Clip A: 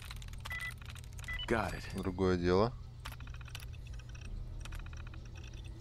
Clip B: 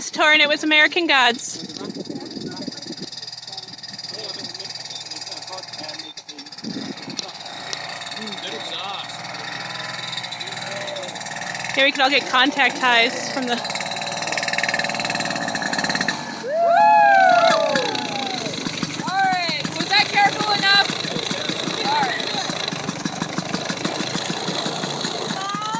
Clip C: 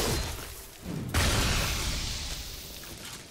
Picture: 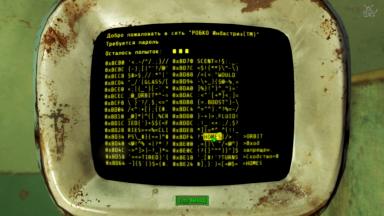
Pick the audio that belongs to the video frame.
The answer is A